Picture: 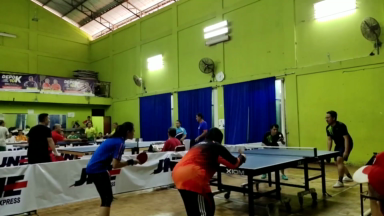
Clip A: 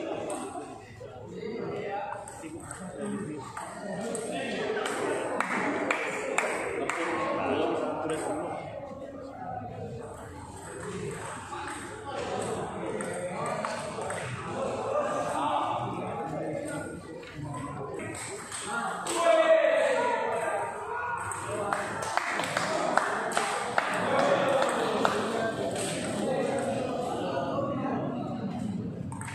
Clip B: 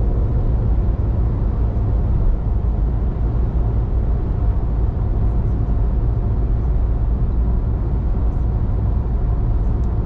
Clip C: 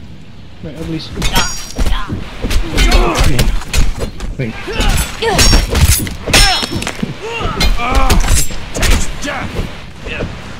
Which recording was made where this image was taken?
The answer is A